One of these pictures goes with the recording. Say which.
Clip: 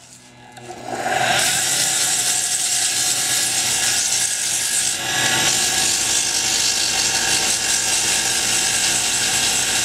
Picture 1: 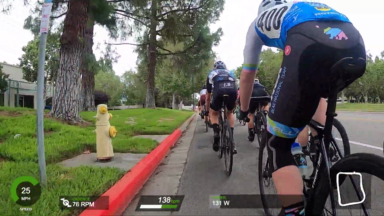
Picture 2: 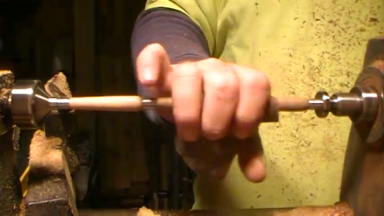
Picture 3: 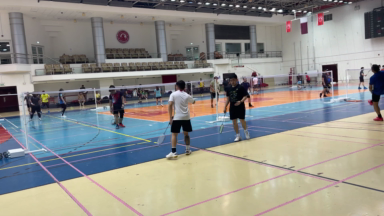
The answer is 2